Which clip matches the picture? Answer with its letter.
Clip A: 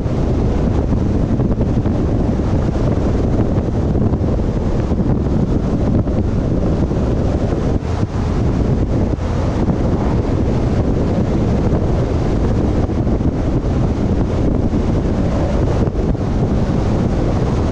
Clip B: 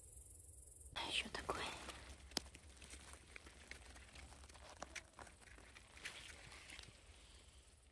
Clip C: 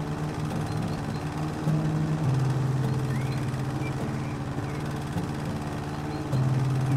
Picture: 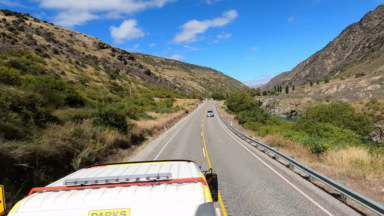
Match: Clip A